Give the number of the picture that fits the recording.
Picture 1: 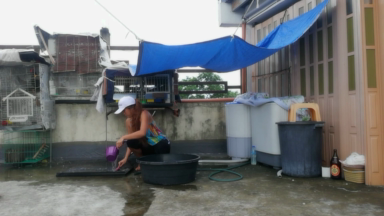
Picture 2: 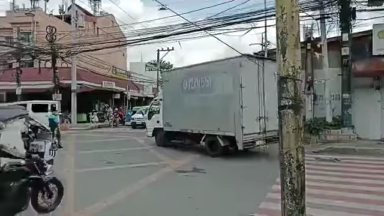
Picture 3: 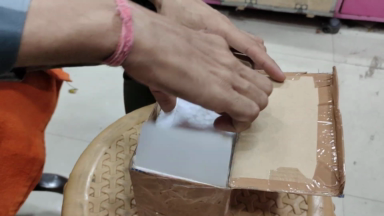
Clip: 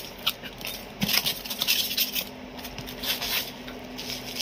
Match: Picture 3